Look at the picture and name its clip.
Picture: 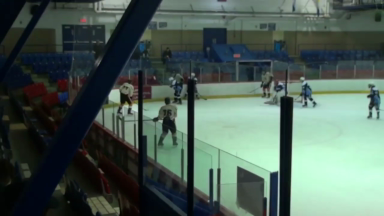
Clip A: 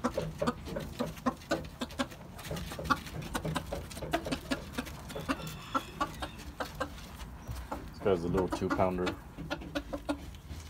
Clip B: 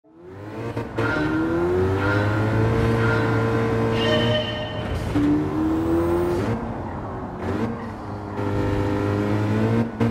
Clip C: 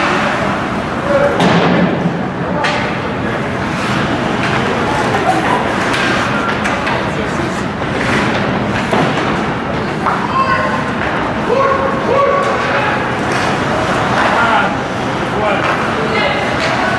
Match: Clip C